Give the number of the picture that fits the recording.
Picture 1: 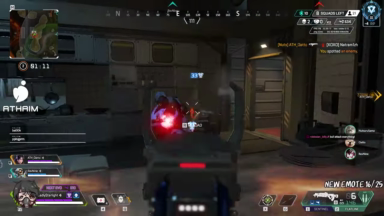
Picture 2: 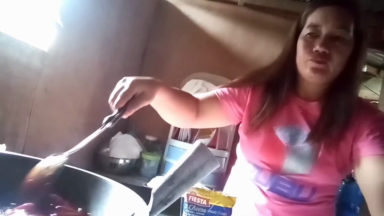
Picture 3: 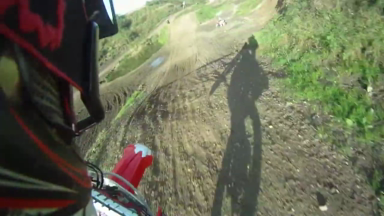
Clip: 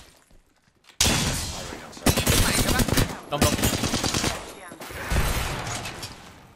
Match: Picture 1